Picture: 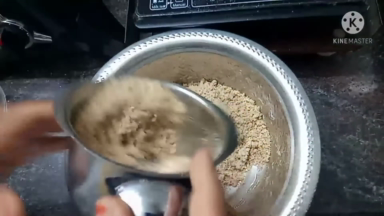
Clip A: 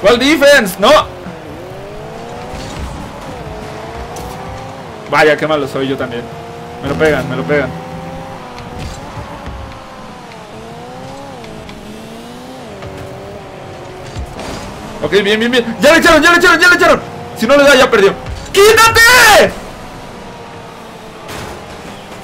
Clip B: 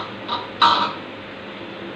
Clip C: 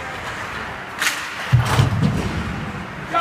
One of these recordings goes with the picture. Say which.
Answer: B